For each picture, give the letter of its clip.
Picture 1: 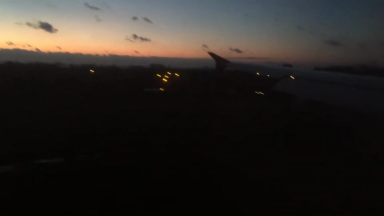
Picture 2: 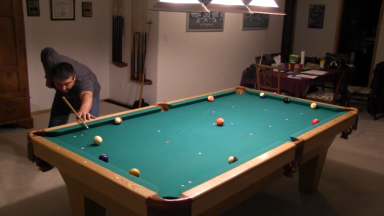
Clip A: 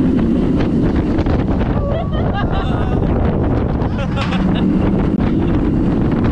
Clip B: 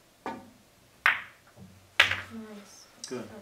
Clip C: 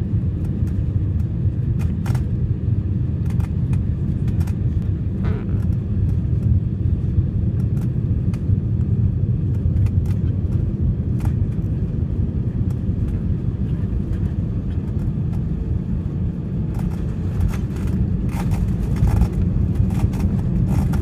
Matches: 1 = C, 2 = B